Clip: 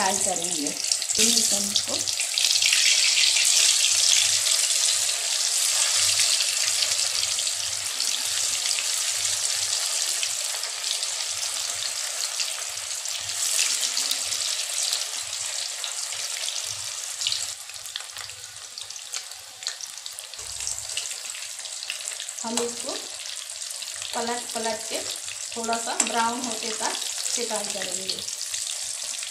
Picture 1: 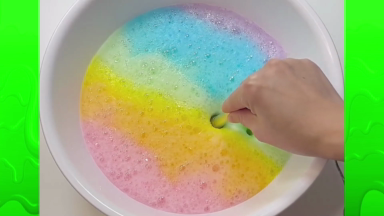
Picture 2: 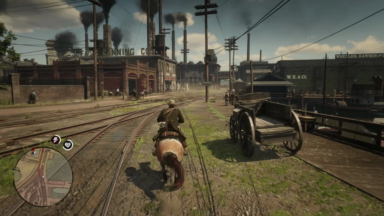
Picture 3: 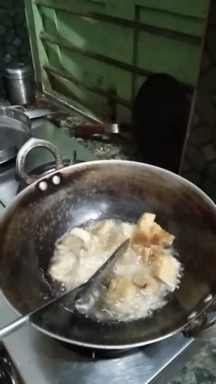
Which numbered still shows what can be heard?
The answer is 3